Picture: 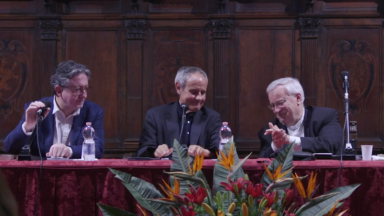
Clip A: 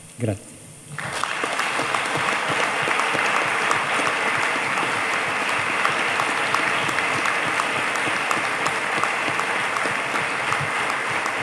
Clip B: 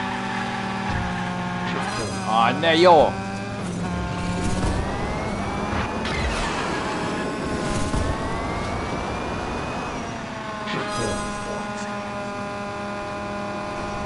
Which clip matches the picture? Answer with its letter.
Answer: A